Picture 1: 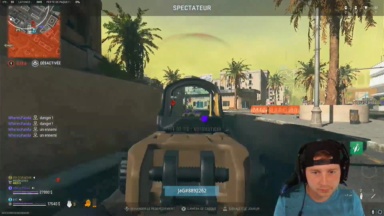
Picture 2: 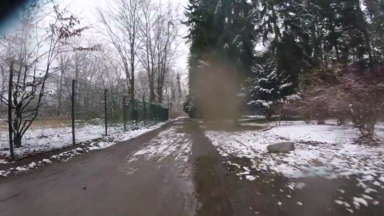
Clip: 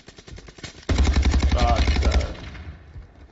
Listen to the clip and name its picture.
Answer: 1